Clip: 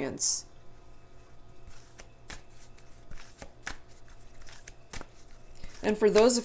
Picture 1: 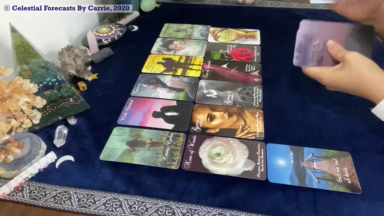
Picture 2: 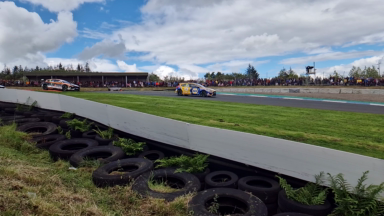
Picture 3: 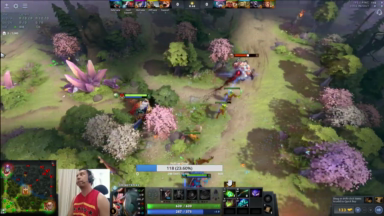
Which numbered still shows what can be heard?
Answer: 1